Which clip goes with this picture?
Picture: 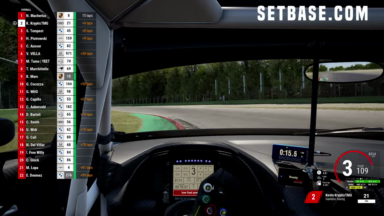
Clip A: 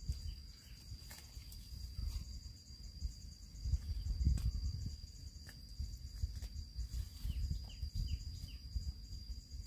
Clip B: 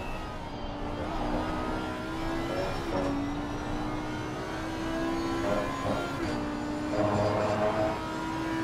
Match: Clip B